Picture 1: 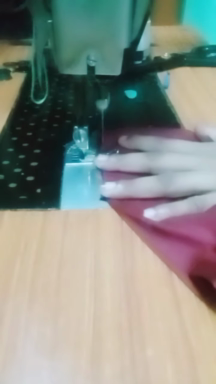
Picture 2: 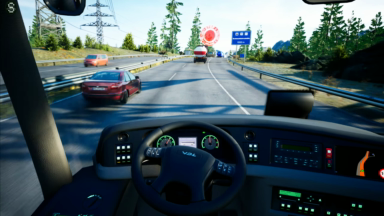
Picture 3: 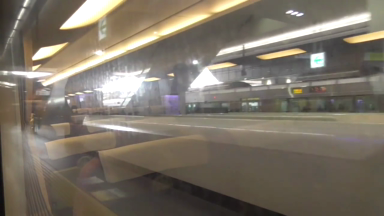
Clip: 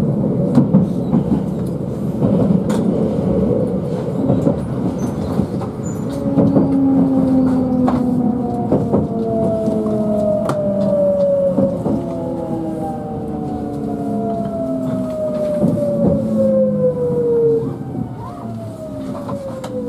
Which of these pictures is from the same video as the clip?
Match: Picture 3